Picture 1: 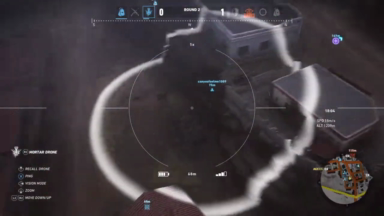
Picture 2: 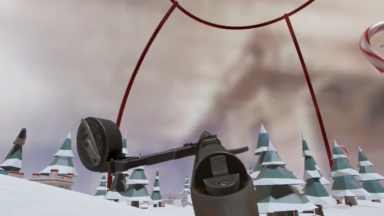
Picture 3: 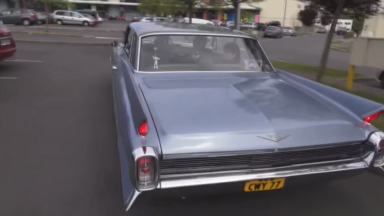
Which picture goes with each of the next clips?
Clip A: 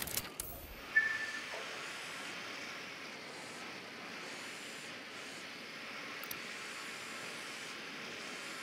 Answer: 1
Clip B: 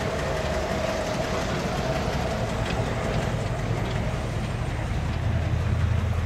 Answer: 3